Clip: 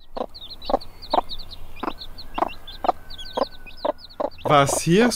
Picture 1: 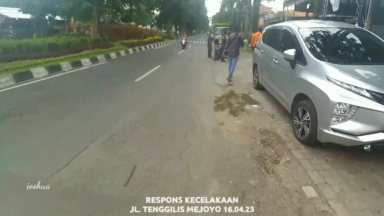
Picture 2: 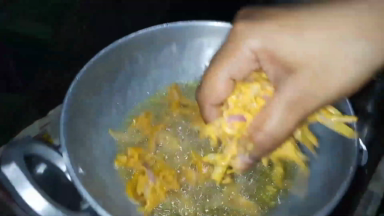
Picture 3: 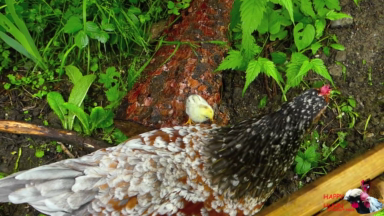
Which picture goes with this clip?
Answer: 3